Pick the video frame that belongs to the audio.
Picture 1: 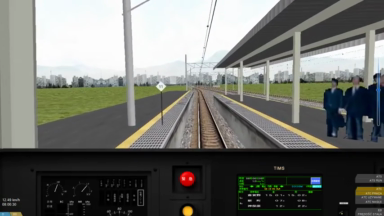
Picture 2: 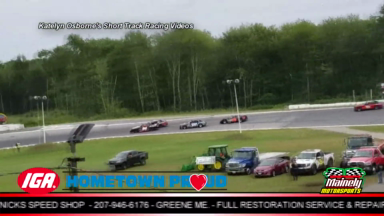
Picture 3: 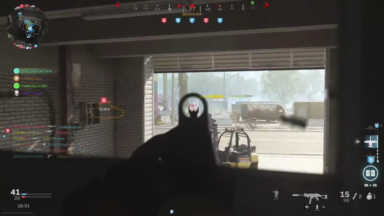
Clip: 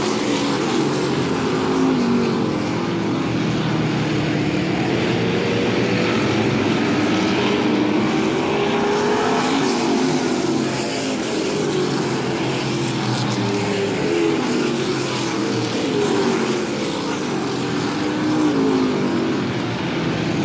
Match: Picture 2